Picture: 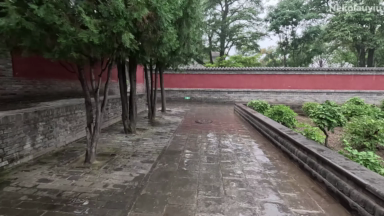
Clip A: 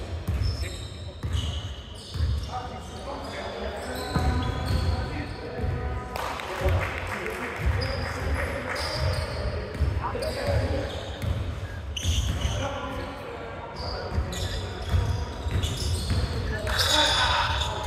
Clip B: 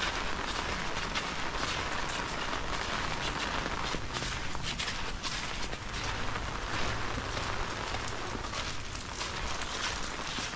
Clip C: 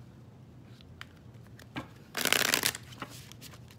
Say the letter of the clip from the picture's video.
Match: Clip B